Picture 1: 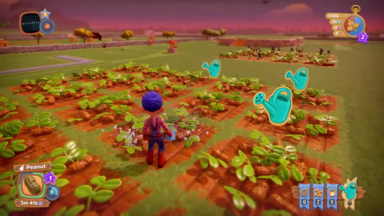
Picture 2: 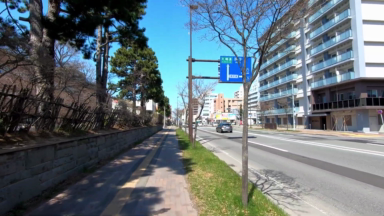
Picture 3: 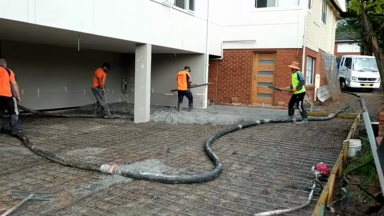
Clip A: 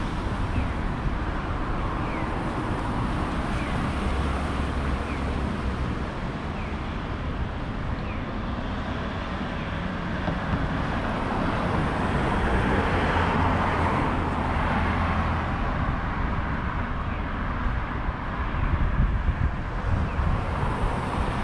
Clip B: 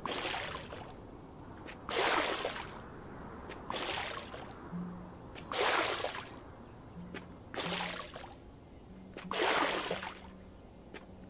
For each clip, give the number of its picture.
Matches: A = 2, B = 1